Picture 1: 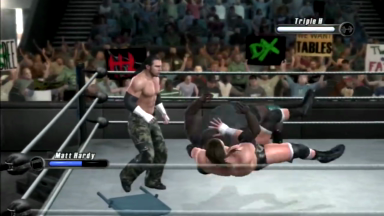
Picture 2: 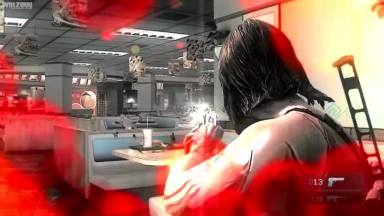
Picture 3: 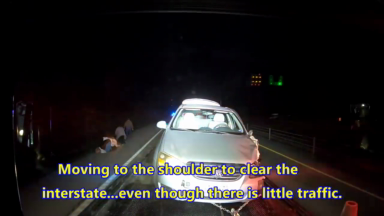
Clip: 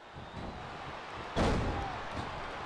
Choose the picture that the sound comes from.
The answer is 1